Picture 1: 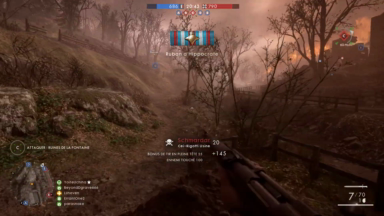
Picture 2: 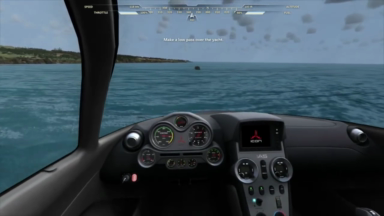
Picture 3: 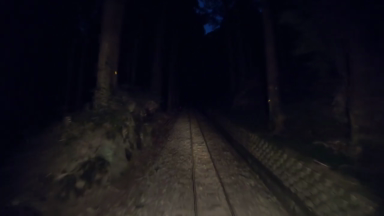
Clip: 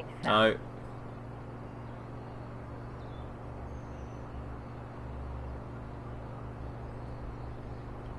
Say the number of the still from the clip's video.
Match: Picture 2